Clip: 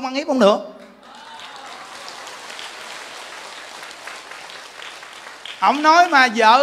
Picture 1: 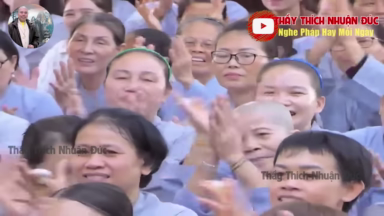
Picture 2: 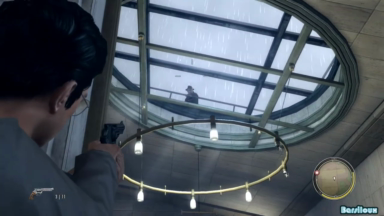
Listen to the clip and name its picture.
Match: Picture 1